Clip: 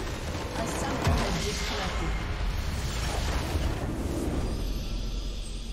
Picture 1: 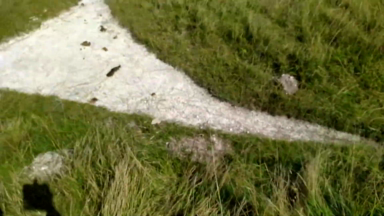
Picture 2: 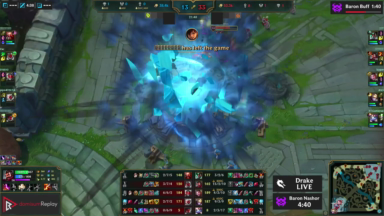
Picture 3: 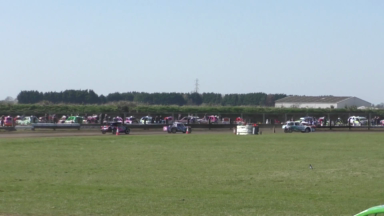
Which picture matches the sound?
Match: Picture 2